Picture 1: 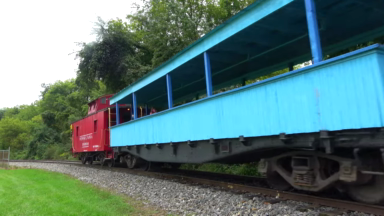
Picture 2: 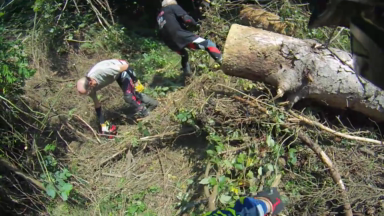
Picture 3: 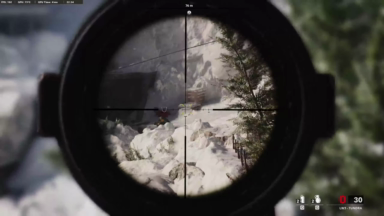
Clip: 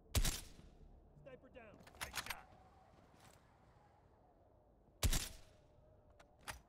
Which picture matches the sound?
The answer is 3